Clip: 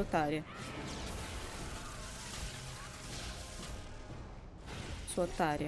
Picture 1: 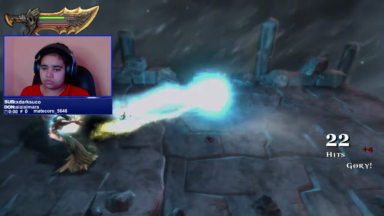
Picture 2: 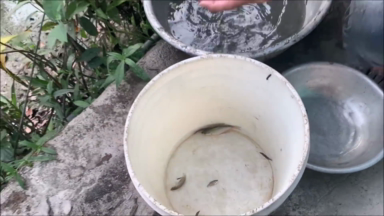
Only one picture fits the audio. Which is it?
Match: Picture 1